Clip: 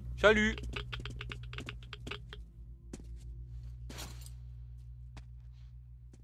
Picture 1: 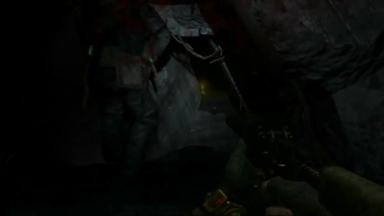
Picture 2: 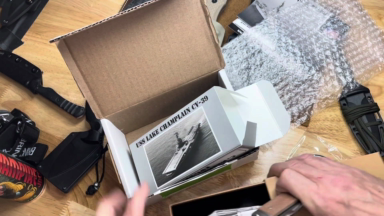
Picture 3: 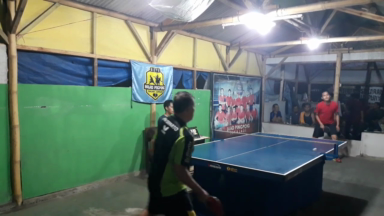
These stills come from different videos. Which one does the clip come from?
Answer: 1